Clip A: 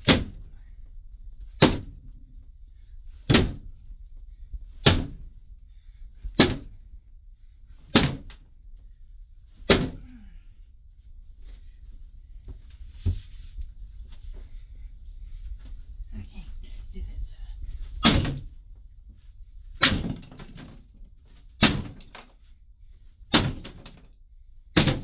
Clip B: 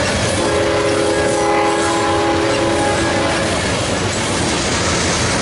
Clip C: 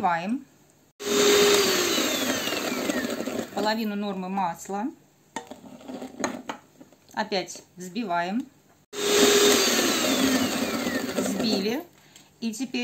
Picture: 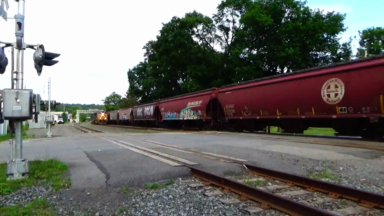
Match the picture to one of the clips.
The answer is B